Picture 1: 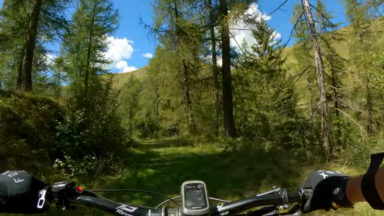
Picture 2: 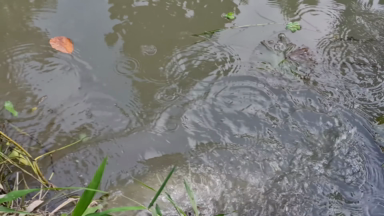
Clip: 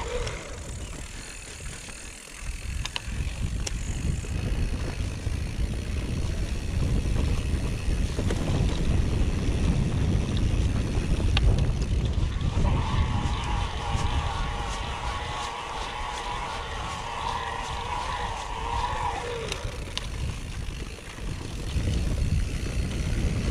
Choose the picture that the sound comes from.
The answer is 1